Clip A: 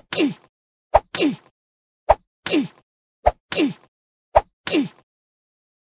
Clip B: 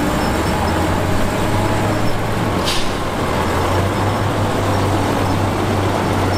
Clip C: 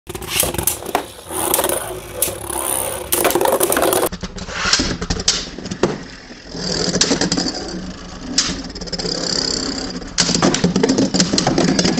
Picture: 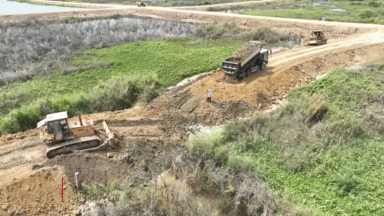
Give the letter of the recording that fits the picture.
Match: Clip B